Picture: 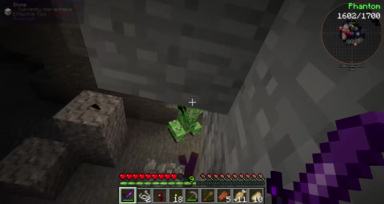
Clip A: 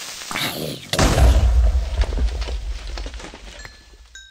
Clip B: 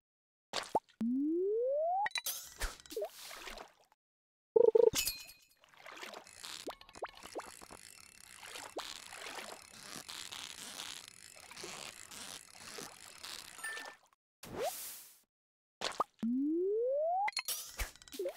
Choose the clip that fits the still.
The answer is A